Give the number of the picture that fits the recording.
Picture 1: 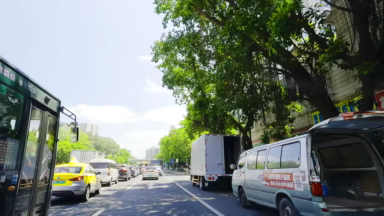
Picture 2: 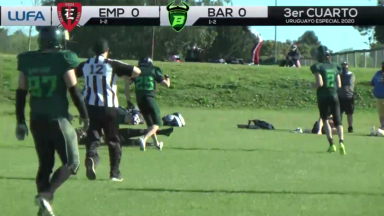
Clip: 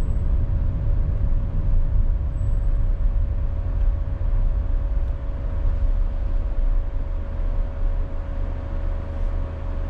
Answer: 1